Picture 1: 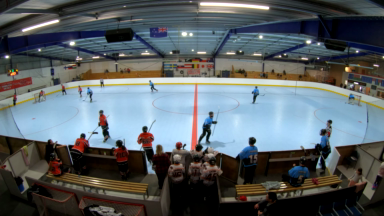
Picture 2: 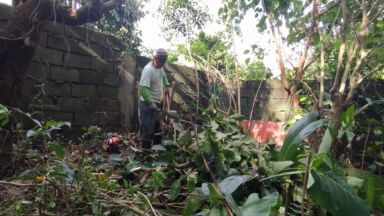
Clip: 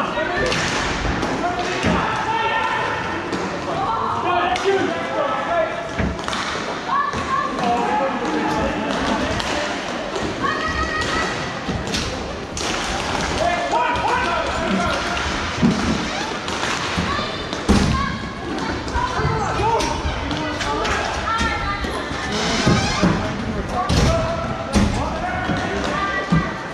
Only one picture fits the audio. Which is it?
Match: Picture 1